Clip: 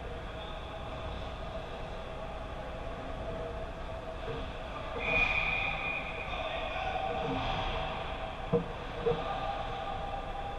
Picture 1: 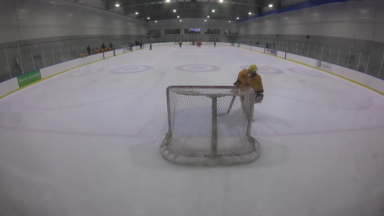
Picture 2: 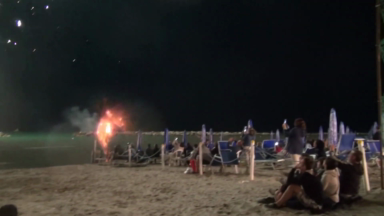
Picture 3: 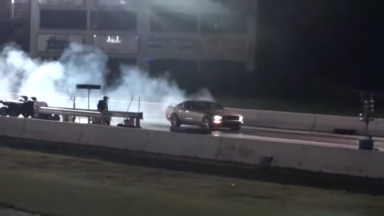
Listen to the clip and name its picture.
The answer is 1